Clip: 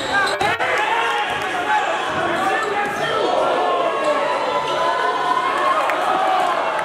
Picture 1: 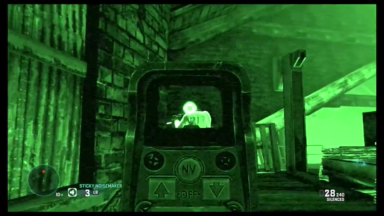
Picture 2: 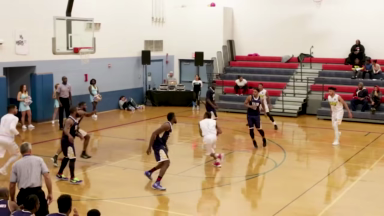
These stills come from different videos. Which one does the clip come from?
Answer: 2